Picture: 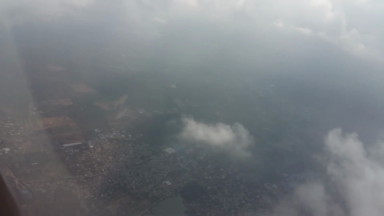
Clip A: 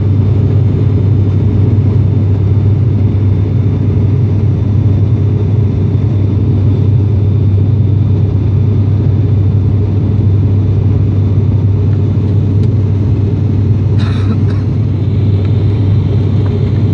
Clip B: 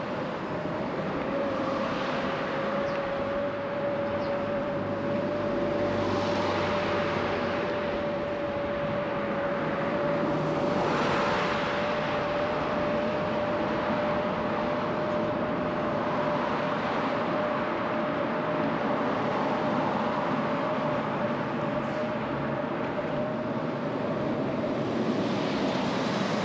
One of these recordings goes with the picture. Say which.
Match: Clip A